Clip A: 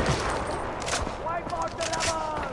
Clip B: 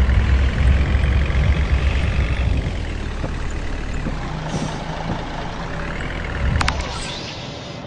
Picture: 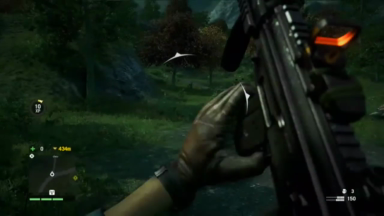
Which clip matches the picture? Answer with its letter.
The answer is A